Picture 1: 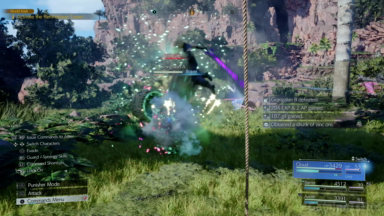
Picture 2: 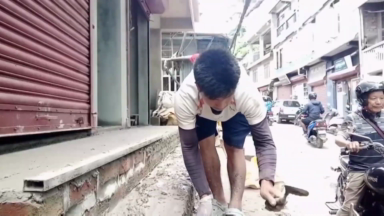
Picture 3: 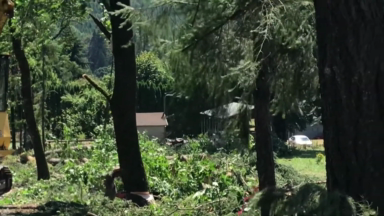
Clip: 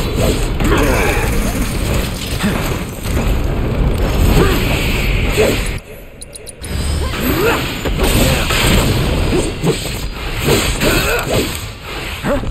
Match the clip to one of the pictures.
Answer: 1